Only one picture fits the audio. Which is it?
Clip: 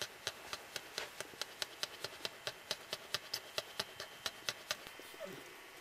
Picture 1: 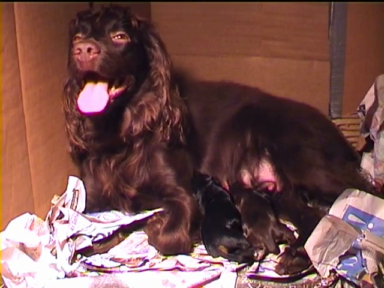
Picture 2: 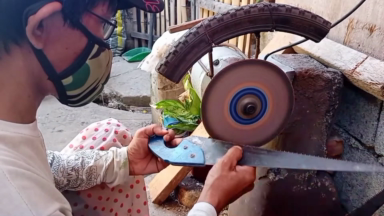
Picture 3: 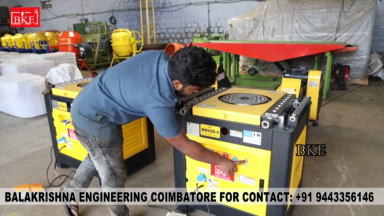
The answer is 1